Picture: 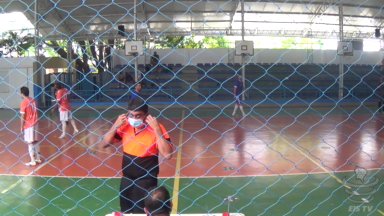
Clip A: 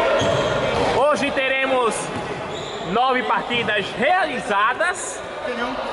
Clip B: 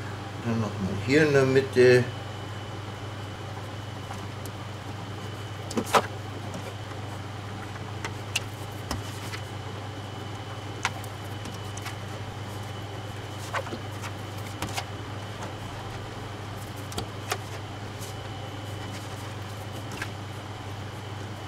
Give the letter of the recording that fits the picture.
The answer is A